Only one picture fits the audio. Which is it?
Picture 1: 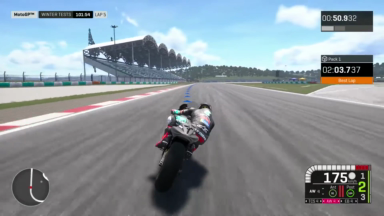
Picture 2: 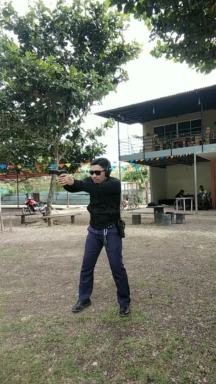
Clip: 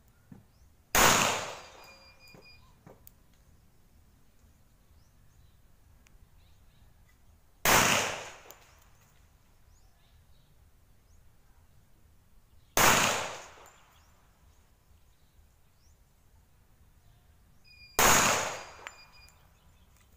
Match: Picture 2